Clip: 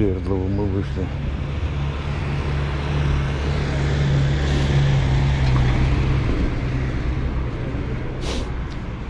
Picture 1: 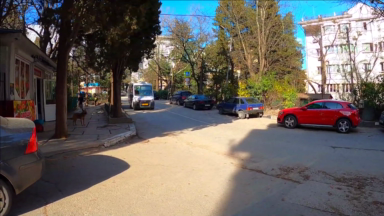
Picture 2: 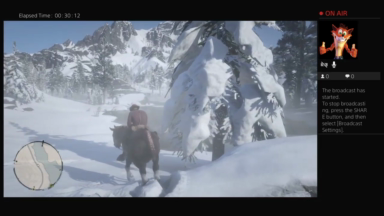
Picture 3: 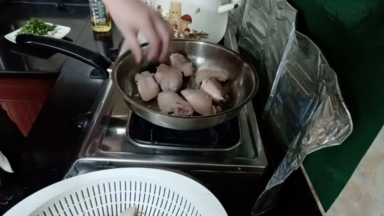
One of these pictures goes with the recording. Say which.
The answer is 1